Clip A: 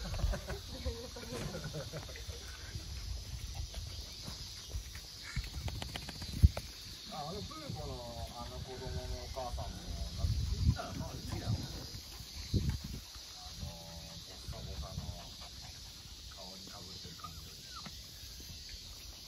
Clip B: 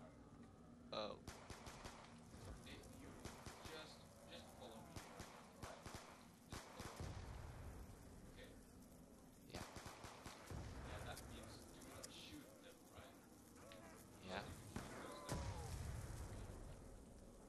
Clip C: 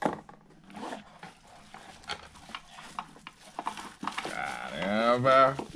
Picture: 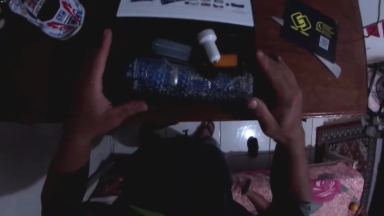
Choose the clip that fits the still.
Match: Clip C